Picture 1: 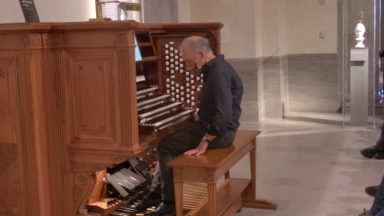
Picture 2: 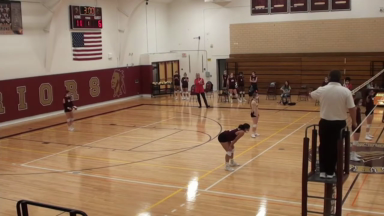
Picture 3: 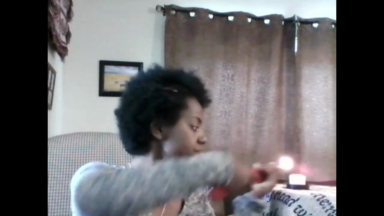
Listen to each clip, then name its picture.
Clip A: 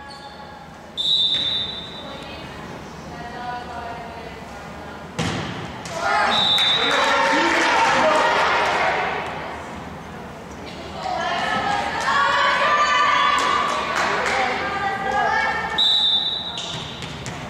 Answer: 2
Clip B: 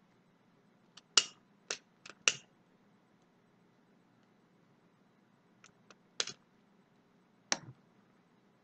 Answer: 3